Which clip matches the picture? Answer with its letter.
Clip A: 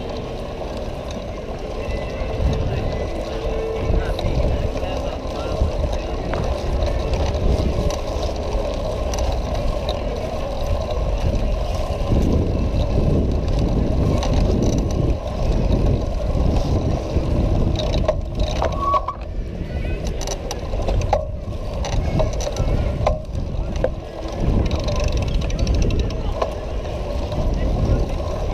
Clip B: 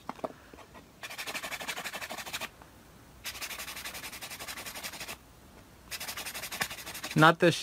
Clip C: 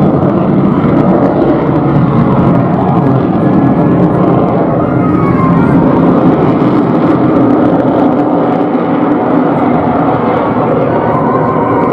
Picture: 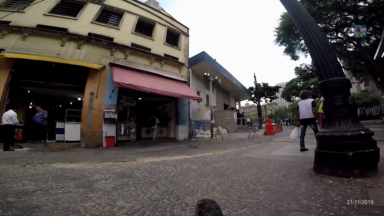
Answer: A